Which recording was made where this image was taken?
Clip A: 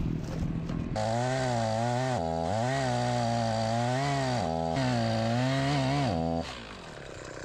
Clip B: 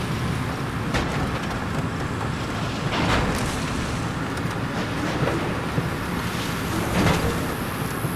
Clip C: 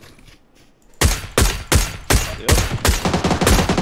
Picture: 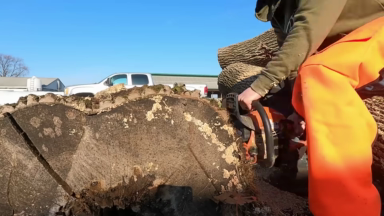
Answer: A